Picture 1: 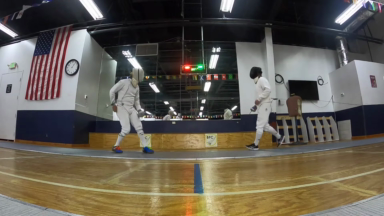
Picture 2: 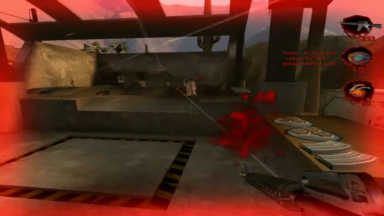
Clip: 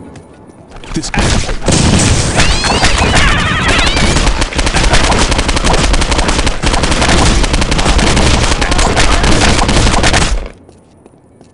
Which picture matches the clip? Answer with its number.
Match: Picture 2